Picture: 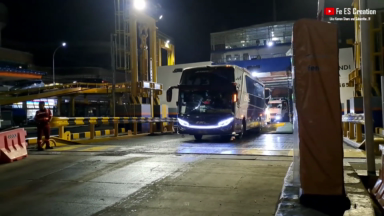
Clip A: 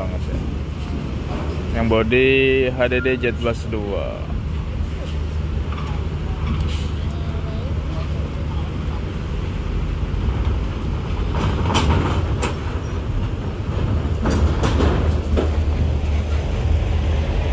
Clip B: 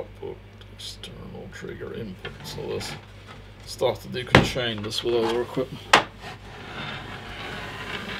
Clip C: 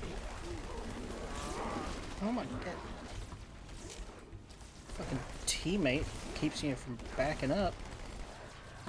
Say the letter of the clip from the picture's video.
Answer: A